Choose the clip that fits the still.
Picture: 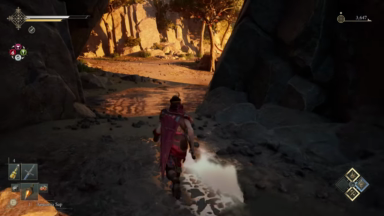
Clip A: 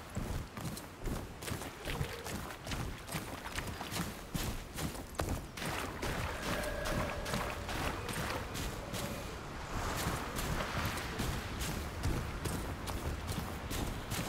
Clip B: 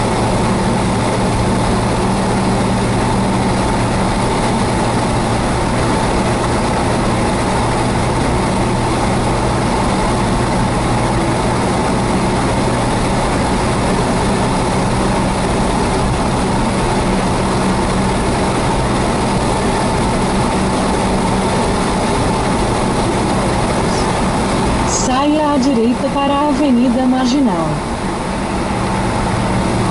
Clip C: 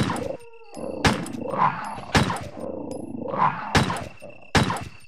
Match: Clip A